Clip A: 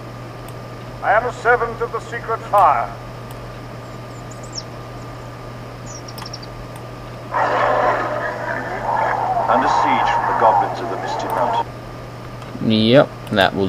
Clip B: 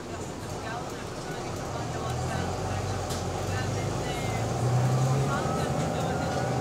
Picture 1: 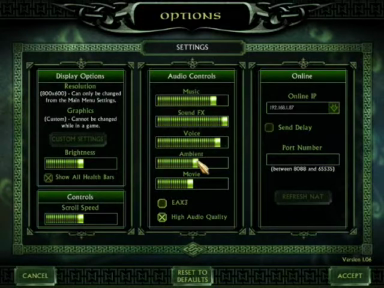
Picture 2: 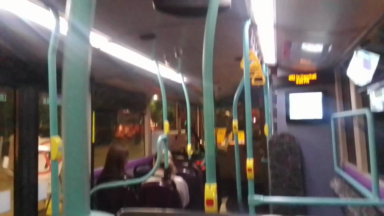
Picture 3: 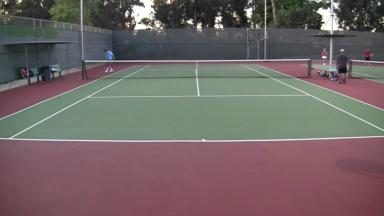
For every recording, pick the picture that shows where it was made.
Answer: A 1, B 2